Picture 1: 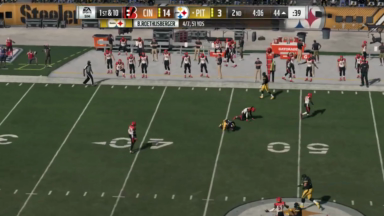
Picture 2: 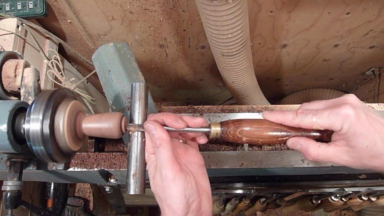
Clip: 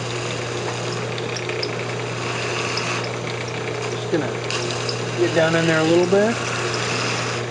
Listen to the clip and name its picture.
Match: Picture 2